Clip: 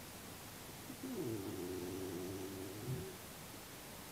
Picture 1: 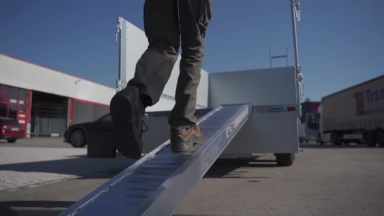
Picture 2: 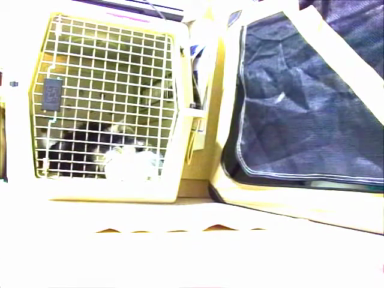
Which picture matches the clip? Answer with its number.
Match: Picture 2